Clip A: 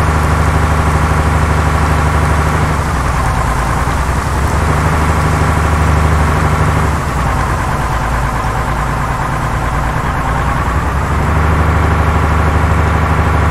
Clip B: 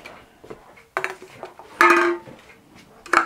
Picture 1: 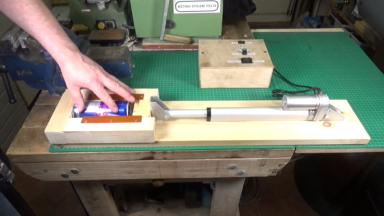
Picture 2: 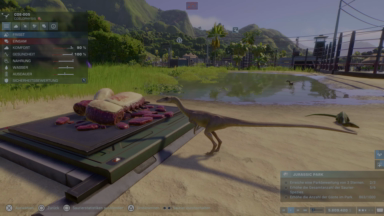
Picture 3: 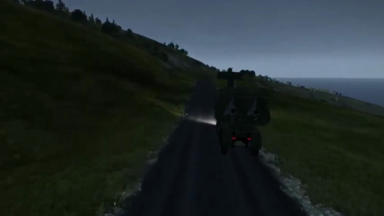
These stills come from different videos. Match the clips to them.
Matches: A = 3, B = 1